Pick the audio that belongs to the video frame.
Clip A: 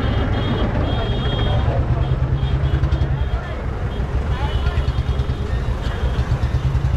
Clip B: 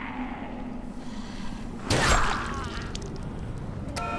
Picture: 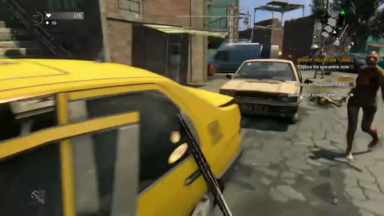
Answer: B